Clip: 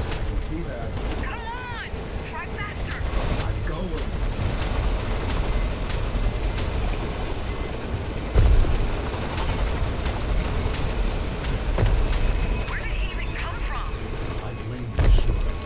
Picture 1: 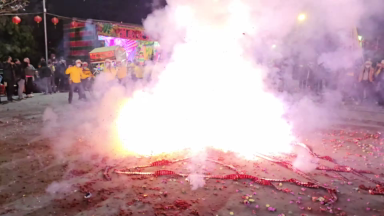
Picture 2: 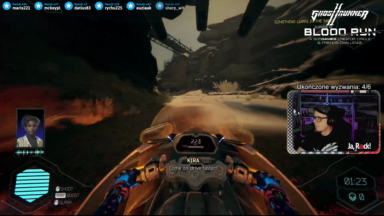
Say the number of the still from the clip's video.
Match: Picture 2